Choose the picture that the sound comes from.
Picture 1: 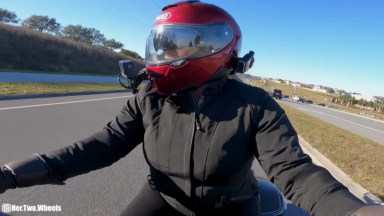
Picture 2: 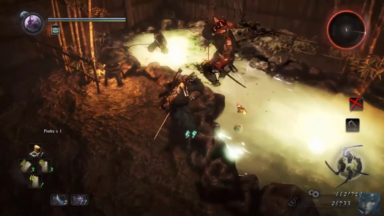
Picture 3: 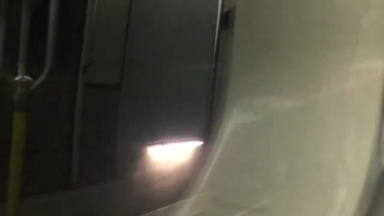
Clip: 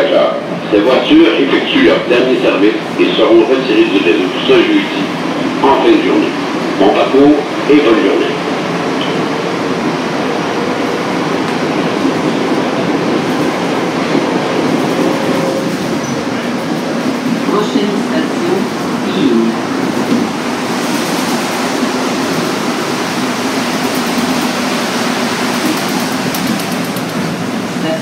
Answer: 3